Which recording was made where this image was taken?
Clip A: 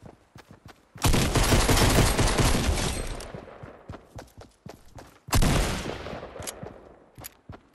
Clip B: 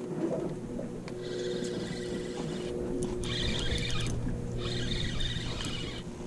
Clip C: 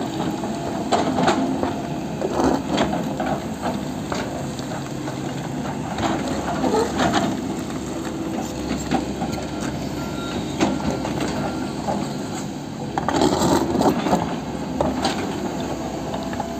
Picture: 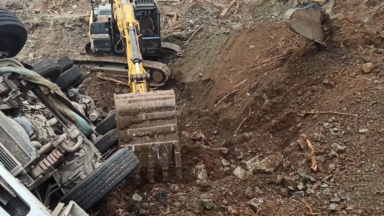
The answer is C